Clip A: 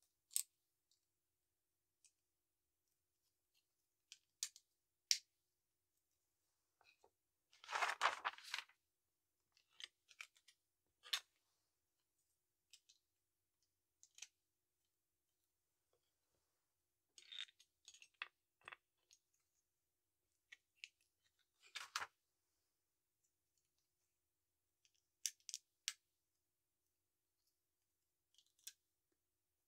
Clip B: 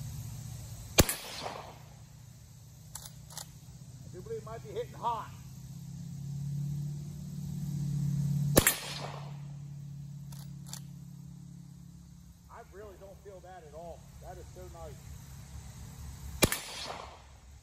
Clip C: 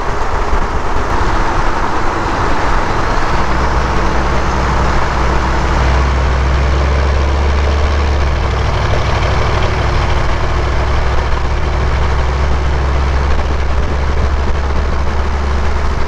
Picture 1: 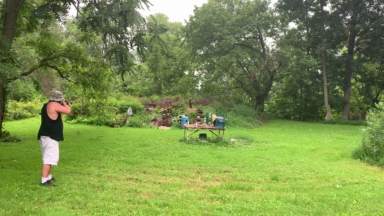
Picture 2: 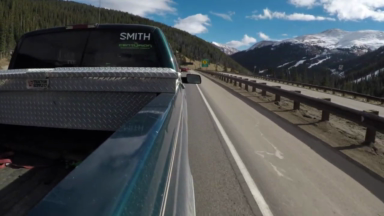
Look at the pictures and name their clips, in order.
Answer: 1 B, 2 C